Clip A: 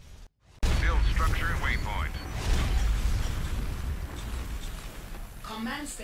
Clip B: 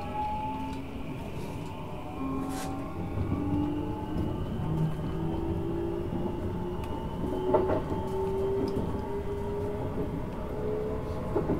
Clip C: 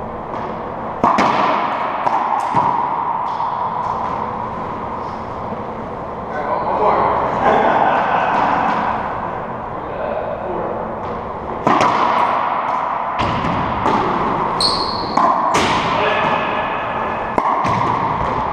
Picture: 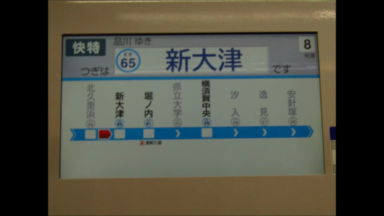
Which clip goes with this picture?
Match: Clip B